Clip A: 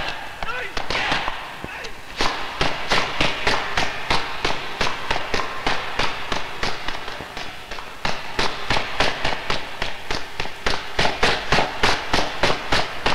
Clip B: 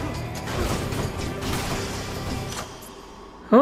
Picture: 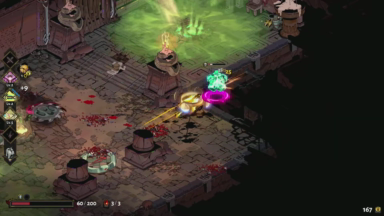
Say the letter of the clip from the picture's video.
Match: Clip B